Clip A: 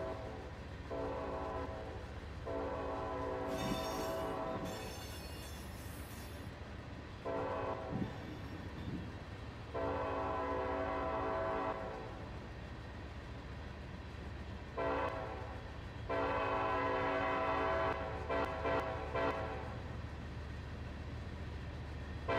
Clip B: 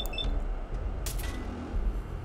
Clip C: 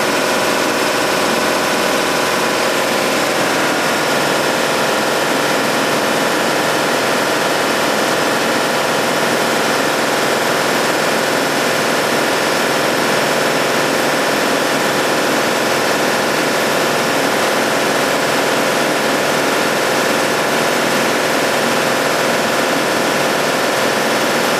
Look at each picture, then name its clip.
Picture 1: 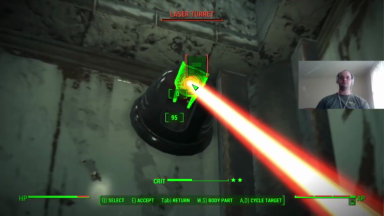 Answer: B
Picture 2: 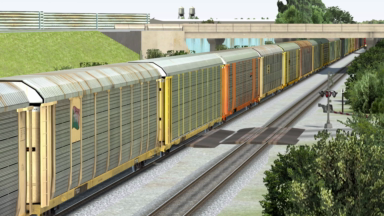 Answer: A